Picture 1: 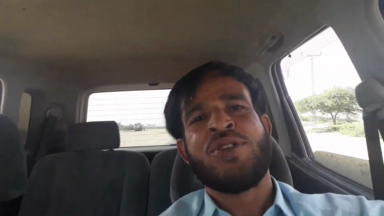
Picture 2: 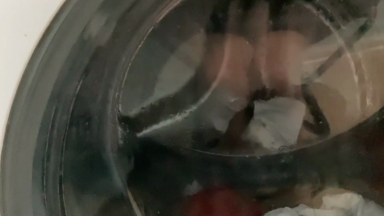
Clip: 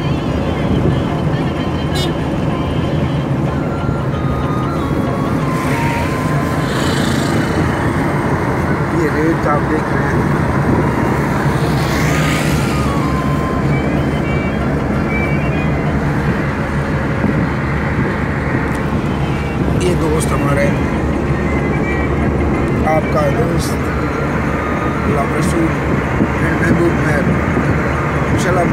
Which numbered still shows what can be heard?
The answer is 1